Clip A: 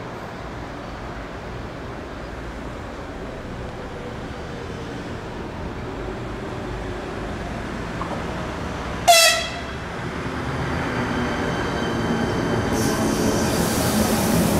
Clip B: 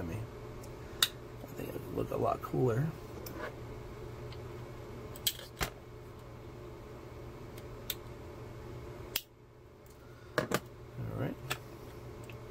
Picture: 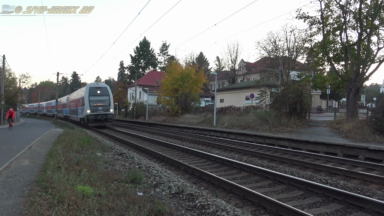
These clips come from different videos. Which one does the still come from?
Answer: A